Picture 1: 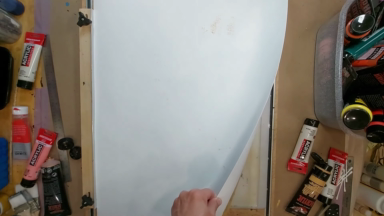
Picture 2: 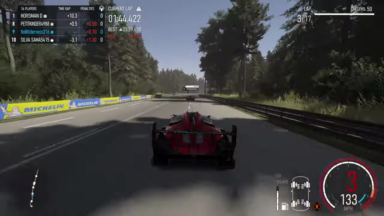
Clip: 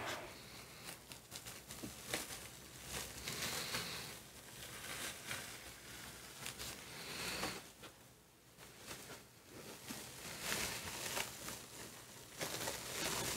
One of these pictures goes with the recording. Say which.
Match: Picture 1